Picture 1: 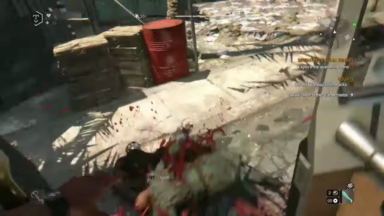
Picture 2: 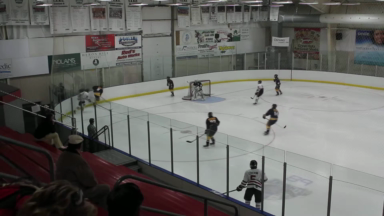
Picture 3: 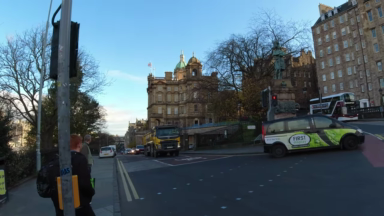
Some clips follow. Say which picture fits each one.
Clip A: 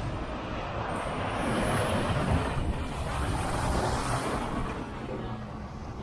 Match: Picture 3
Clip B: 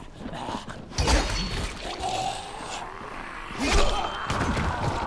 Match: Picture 1